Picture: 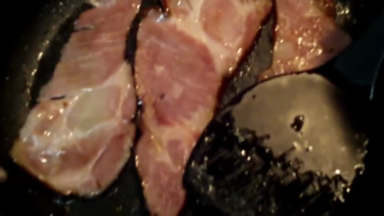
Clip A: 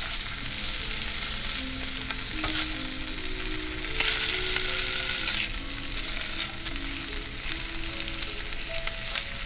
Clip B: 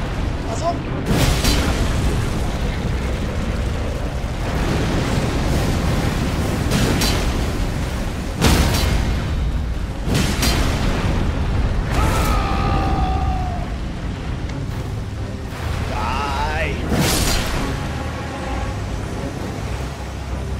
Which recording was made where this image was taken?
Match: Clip A